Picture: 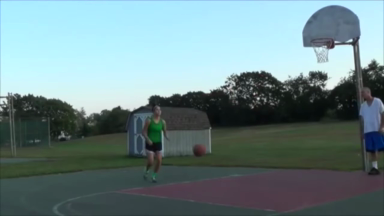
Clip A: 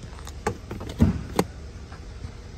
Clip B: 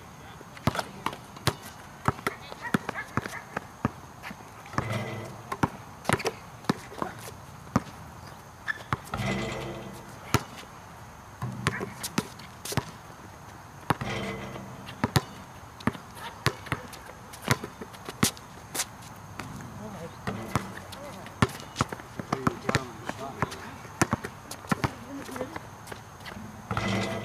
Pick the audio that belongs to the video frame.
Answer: B